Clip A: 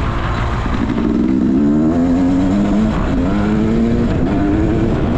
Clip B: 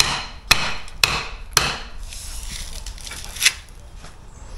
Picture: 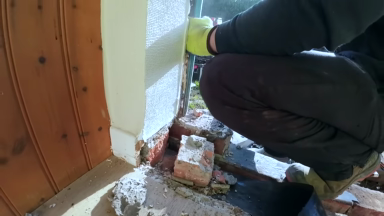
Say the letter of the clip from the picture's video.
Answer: B